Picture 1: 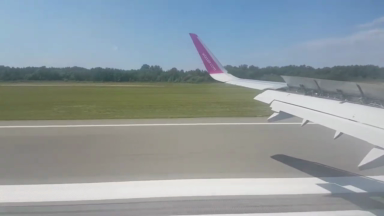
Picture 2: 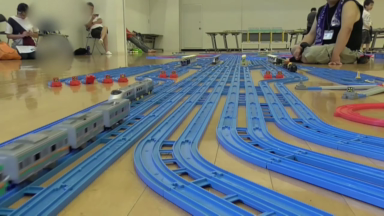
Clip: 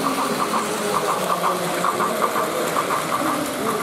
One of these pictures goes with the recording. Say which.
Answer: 2